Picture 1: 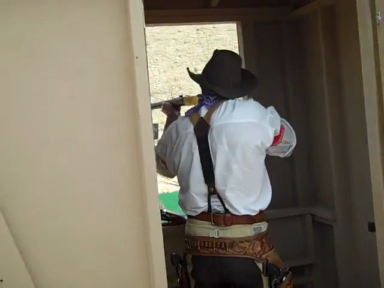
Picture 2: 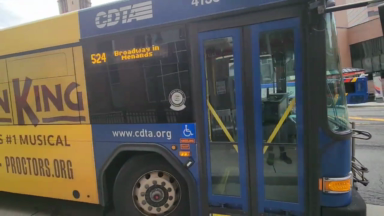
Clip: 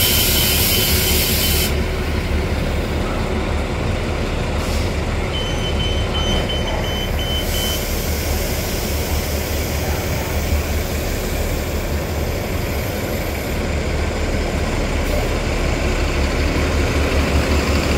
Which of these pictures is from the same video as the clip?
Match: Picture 2